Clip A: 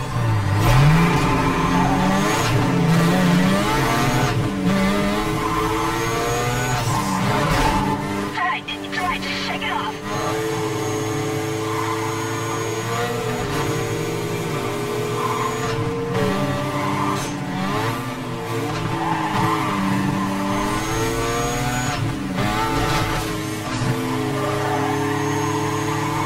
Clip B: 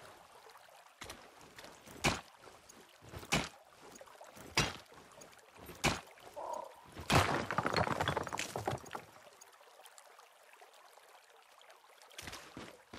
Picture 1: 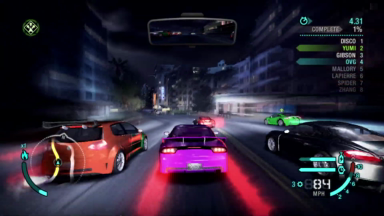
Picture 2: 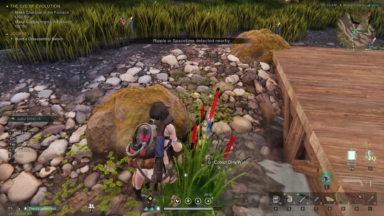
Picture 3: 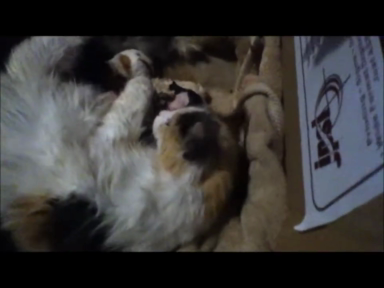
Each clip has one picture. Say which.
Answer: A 1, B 2